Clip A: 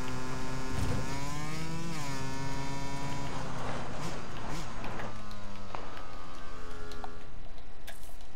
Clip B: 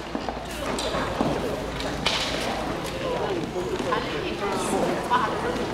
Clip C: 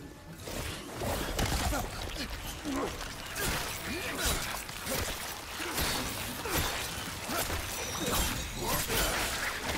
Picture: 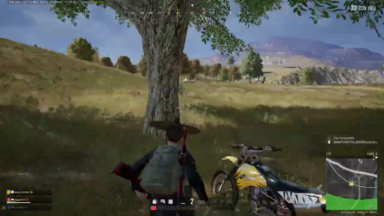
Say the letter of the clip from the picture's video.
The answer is A